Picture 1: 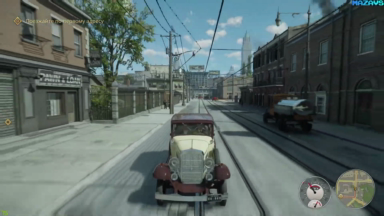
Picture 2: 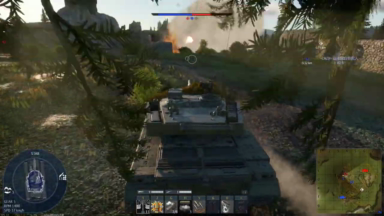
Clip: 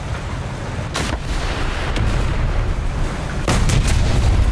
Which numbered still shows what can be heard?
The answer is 2